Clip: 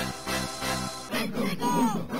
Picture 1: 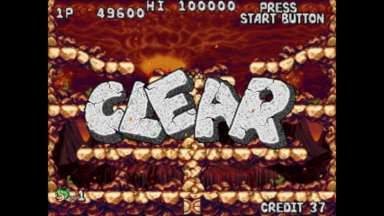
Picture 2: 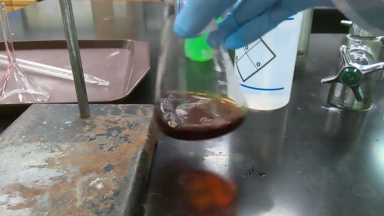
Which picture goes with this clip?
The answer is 1